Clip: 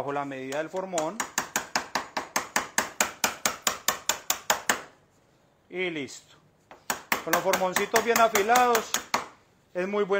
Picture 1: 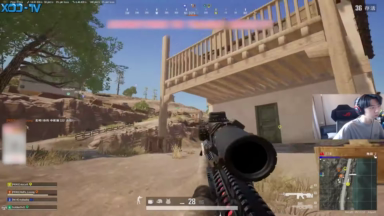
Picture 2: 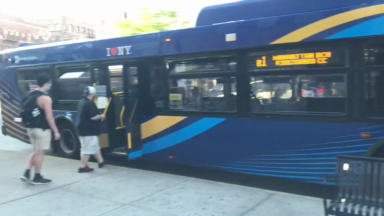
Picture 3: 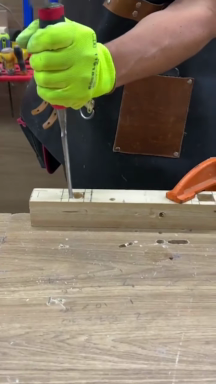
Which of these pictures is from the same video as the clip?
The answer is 3